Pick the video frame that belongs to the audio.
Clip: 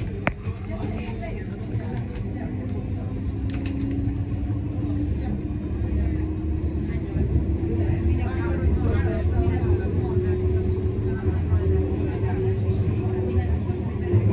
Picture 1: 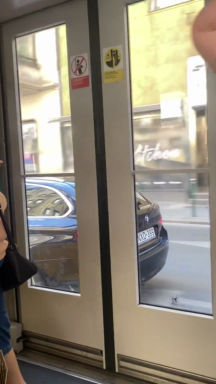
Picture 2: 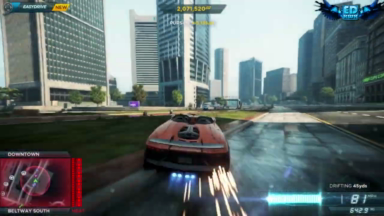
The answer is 1